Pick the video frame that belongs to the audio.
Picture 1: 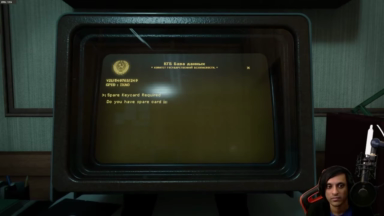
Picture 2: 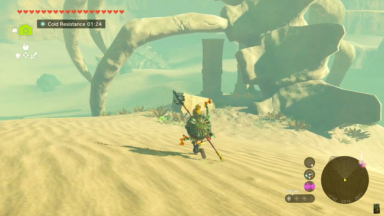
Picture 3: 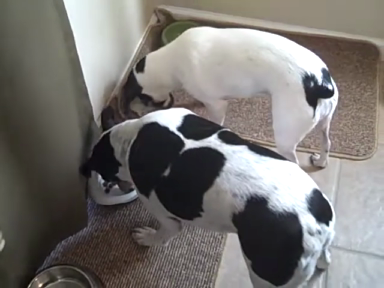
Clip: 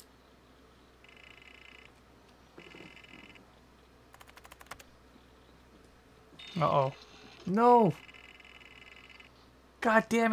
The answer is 1